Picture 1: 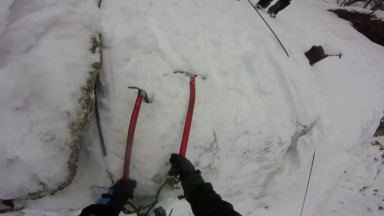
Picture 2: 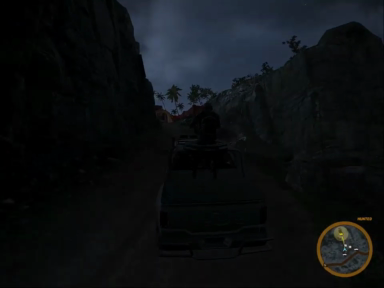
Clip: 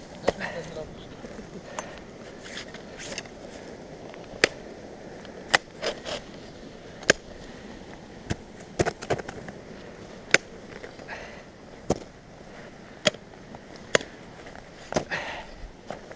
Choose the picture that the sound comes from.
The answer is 1